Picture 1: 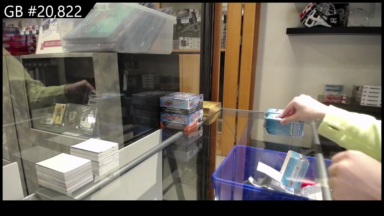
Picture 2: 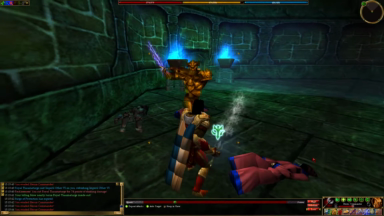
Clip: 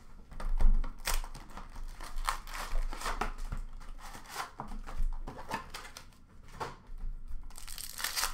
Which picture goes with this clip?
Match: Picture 1